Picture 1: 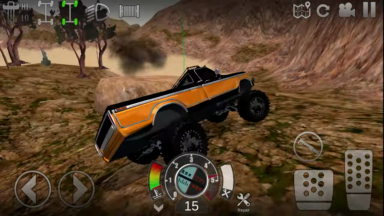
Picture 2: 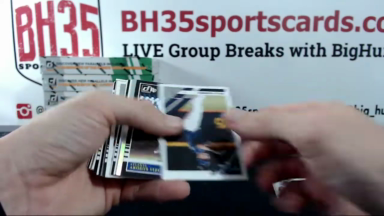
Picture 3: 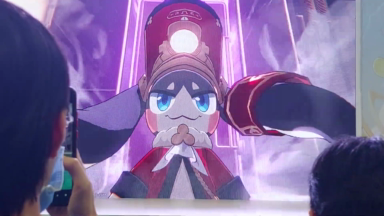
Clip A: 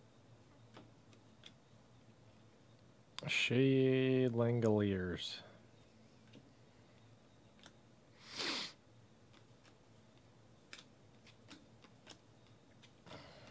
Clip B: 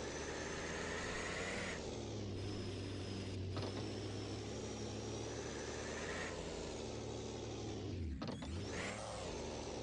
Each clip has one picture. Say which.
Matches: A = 2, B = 1